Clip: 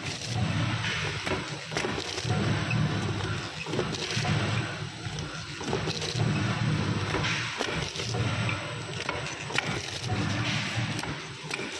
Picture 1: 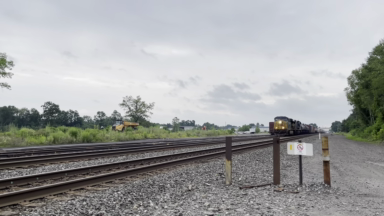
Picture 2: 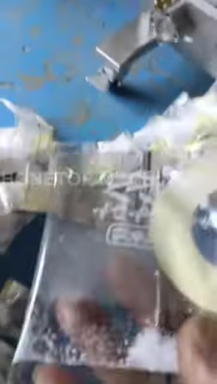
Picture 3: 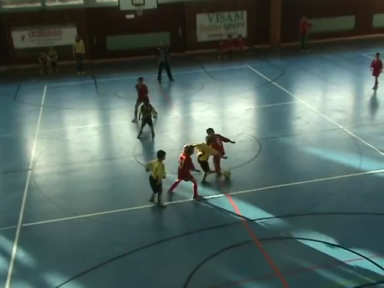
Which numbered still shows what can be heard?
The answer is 2